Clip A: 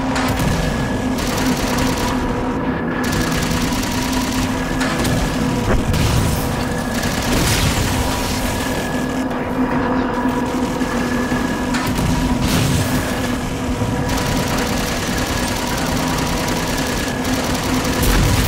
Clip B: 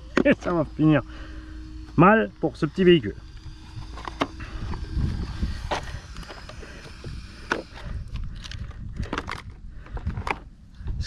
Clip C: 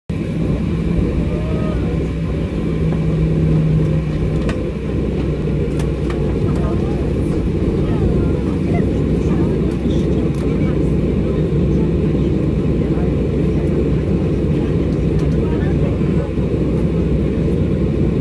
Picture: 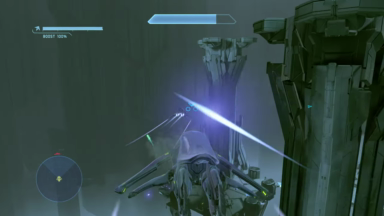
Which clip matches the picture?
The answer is A